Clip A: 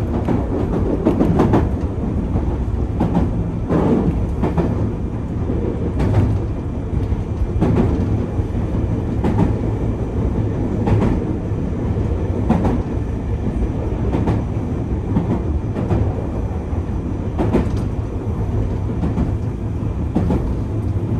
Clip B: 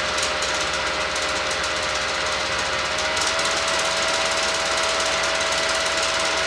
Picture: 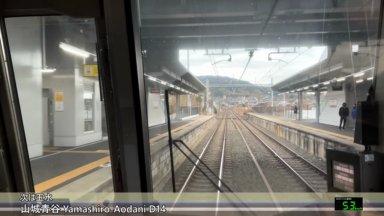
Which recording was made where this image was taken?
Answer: A